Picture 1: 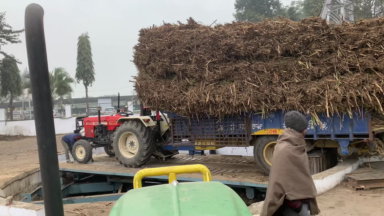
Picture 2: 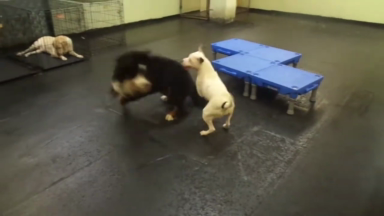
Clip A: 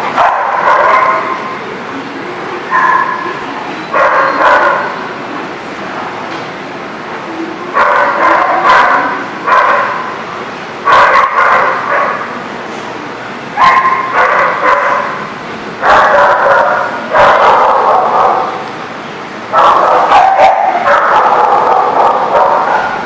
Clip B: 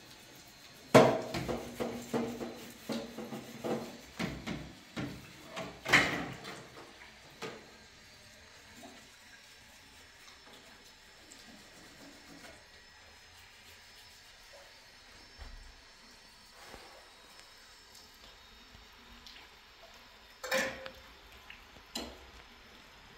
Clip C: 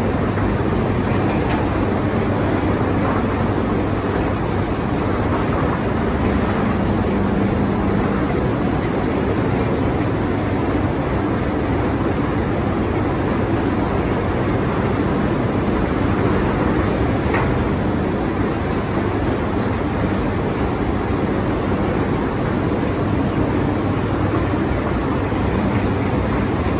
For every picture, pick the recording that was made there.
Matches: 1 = C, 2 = A